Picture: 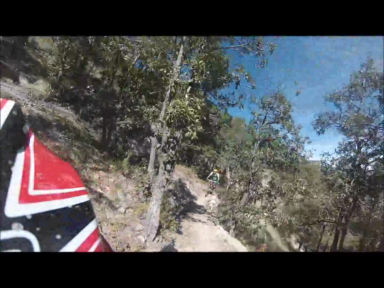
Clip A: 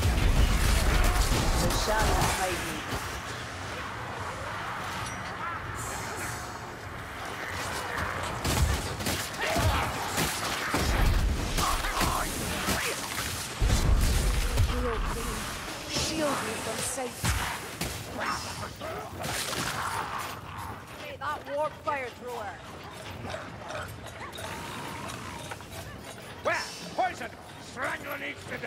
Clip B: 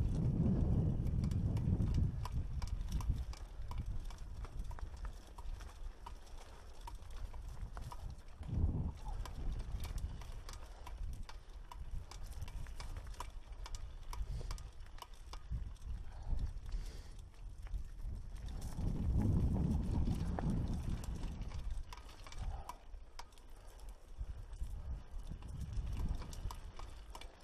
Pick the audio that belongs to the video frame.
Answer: B